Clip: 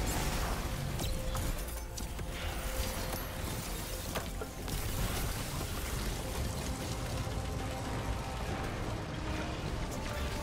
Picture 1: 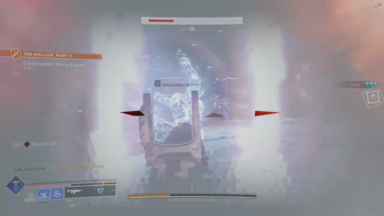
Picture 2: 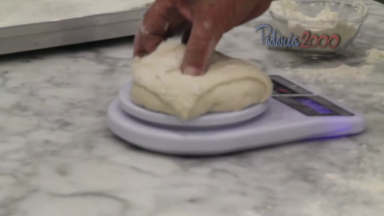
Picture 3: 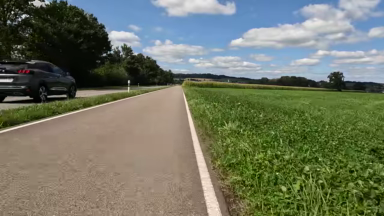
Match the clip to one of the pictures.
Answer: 1